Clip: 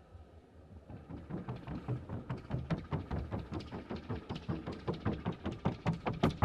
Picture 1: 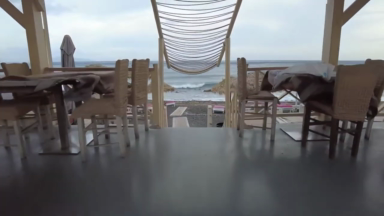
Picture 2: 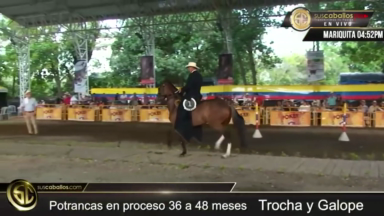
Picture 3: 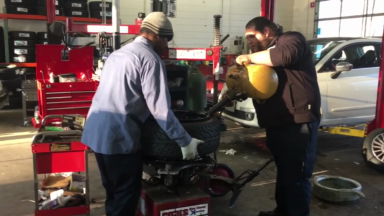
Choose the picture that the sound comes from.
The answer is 2